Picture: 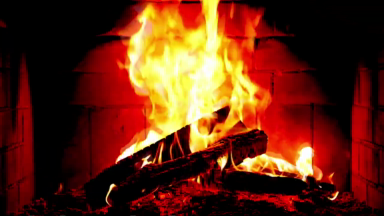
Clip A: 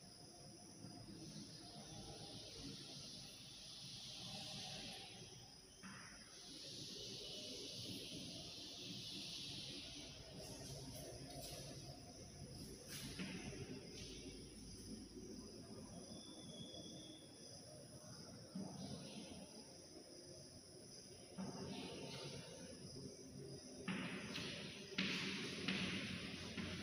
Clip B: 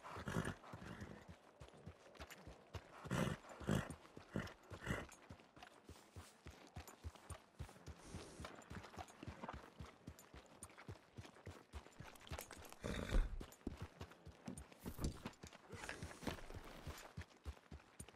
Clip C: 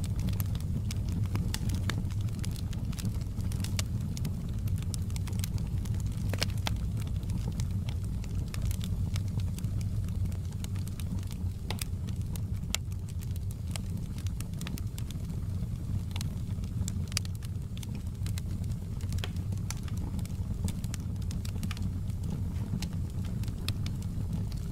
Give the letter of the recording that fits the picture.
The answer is C